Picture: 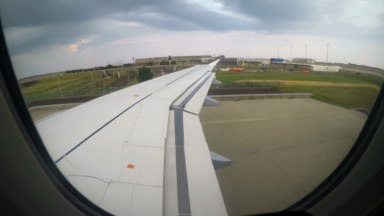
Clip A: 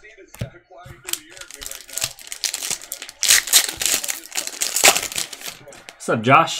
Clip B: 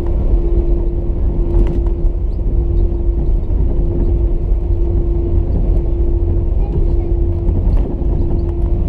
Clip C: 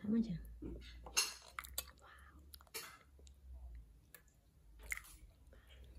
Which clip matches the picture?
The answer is B